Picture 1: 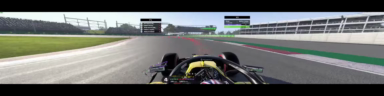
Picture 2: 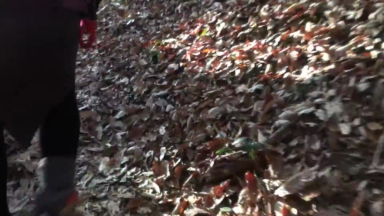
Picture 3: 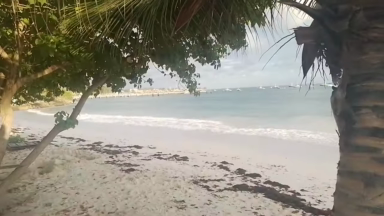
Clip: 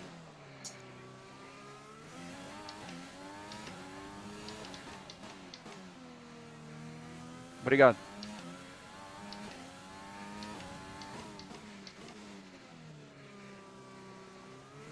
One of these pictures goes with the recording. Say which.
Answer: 1